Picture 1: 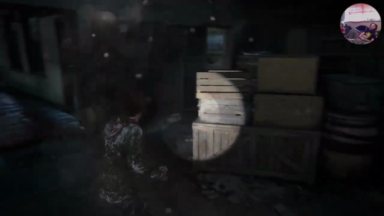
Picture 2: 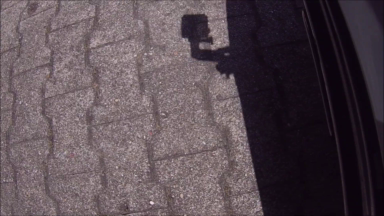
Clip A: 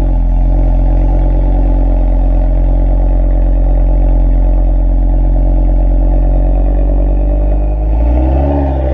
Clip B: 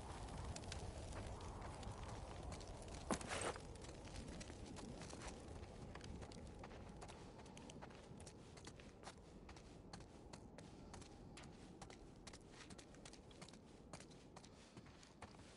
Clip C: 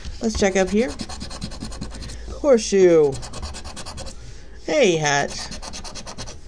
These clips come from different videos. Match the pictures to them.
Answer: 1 B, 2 A